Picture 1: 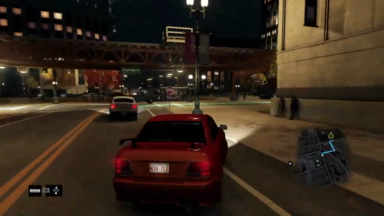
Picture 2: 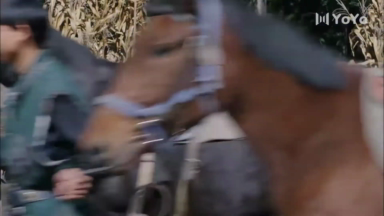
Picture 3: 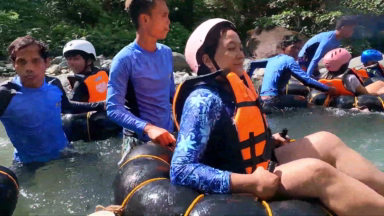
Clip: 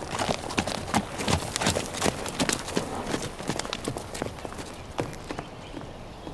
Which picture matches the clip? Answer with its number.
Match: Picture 2